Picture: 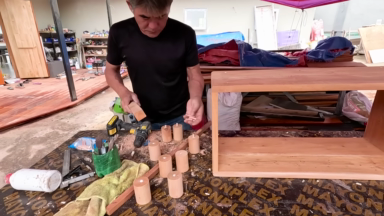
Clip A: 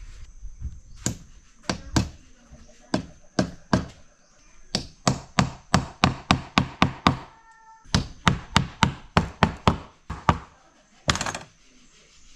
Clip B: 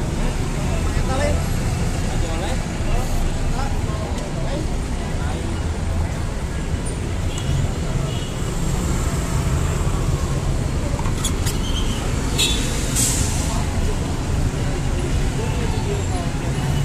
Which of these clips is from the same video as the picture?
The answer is A